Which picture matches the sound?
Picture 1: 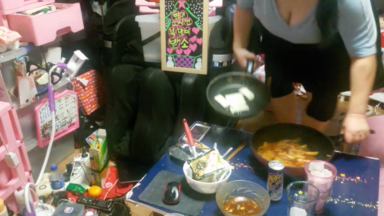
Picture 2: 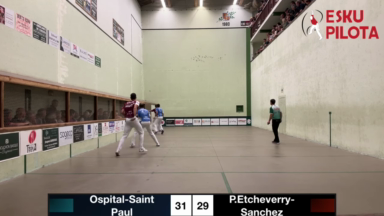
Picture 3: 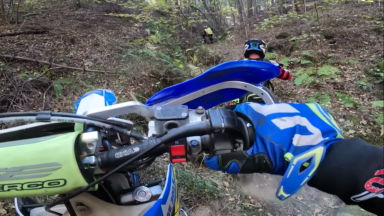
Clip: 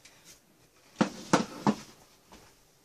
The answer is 1